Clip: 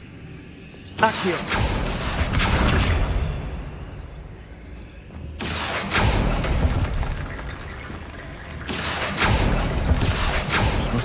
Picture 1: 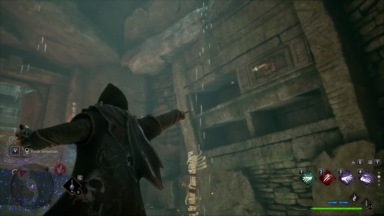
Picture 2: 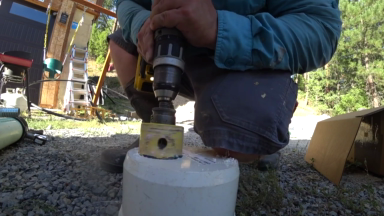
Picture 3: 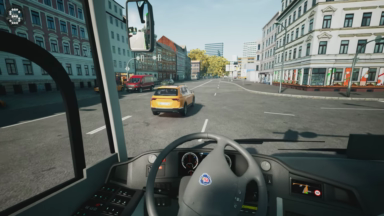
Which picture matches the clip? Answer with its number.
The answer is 1